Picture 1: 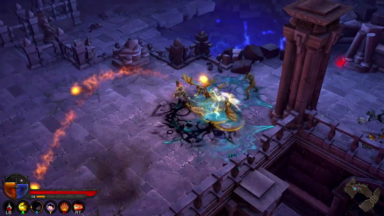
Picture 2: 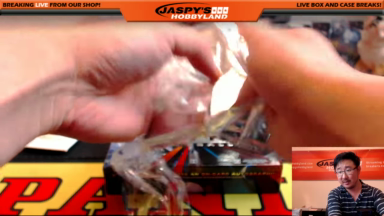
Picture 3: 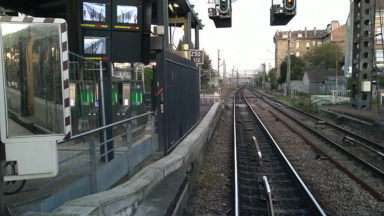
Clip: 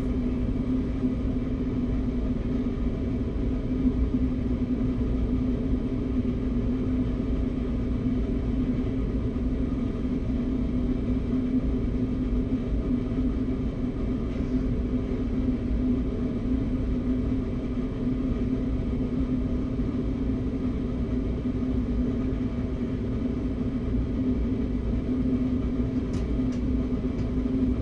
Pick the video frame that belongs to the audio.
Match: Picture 3